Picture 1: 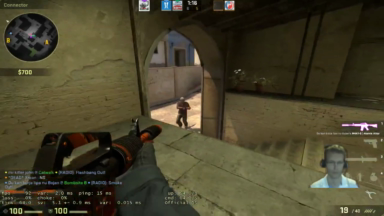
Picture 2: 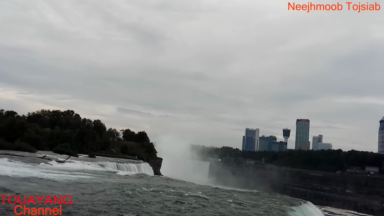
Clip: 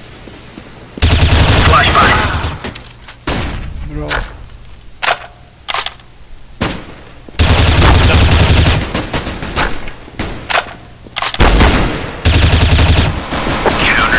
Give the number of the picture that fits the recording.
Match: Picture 1